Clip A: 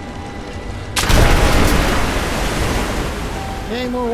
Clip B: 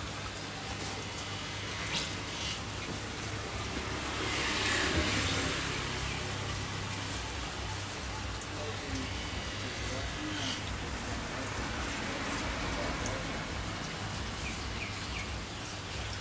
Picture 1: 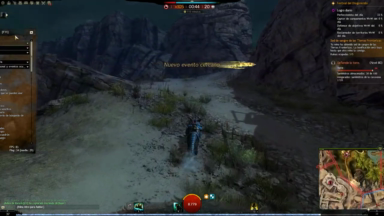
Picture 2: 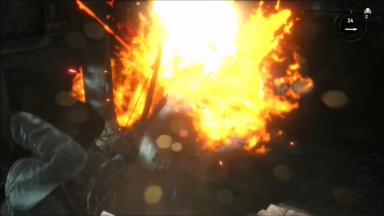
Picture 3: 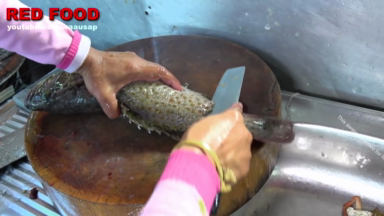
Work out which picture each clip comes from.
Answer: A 2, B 3